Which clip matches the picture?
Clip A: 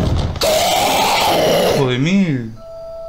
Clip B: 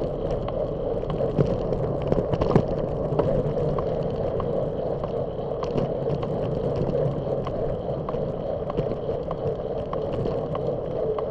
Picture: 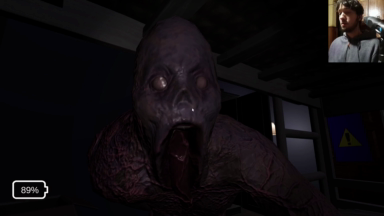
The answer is A